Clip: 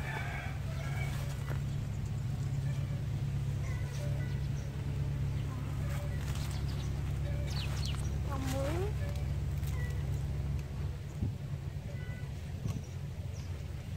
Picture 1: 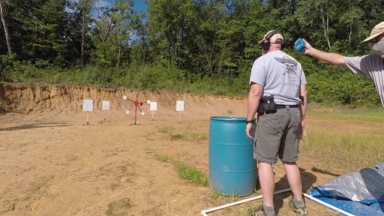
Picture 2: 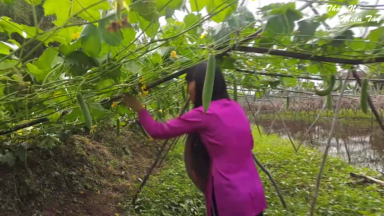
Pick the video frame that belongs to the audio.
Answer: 2